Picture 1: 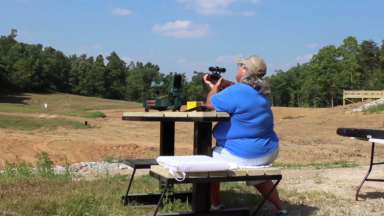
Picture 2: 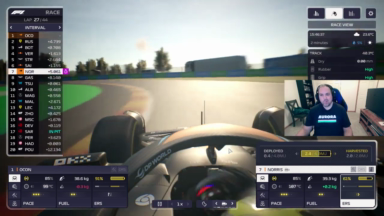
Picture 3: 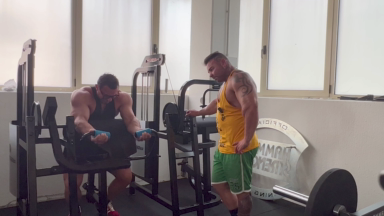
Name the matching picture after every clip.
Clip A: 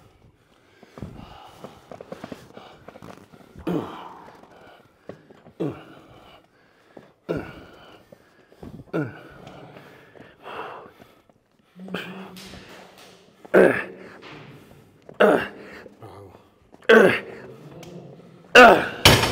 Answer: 3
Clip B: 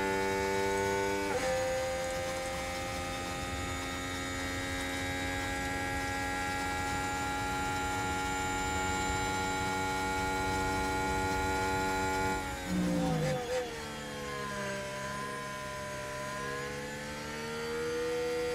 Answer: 2